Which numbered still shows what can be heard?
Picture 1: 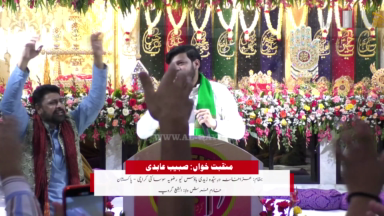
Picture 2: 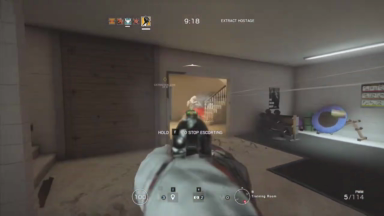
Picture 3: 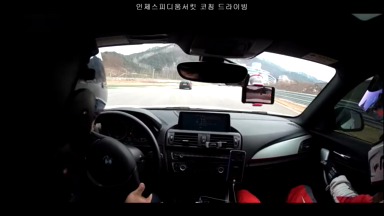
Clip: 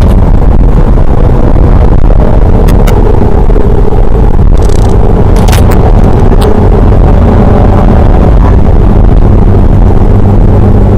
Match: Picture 3